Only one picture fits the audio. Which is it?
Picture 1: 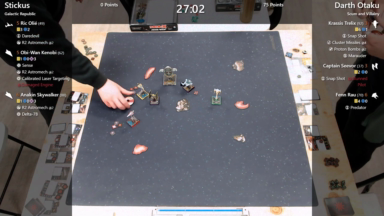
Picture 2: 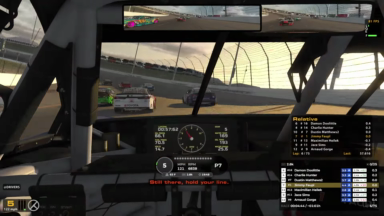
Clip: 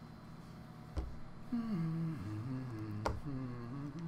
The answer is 1